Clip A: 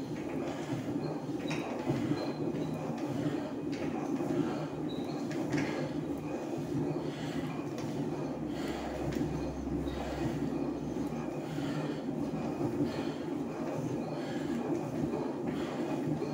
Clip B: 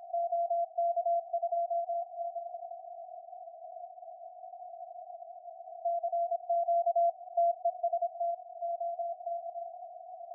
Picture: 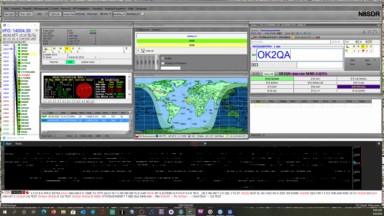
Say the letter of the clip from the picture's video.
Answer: B